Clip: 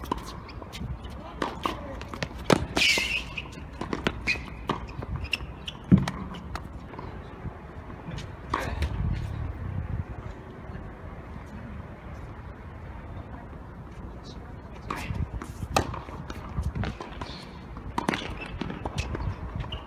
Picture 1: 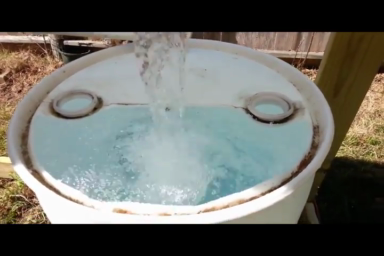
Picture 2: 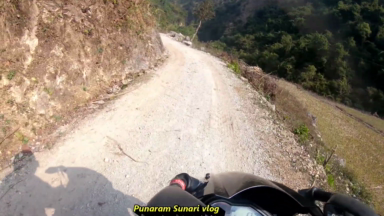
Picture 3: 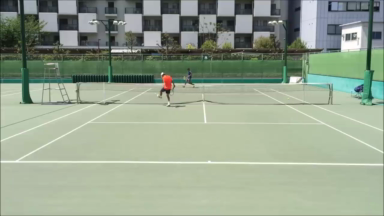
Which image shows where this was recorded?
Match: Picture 3